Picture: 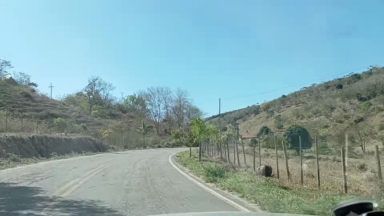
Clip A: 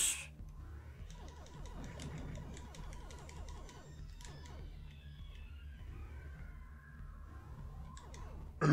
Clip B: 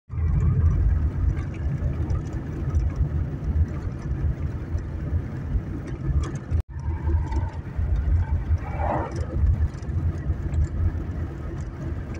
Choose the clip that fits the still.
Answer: B